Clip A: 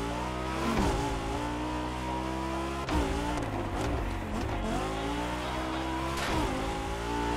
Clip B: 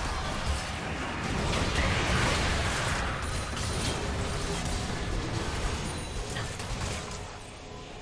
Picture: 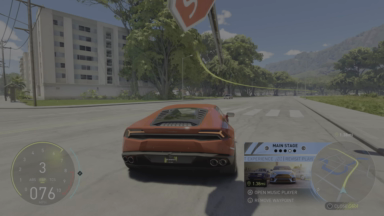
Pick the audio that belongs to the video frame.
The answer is A